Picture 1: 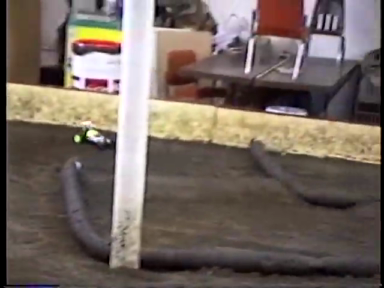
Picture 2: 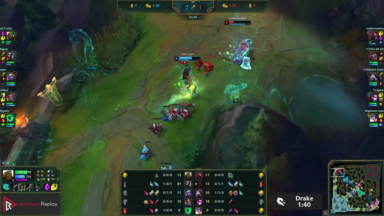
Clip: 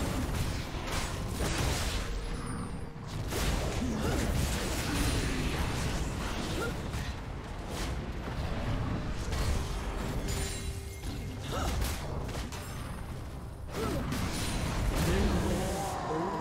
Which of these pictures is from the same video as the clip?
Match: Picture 2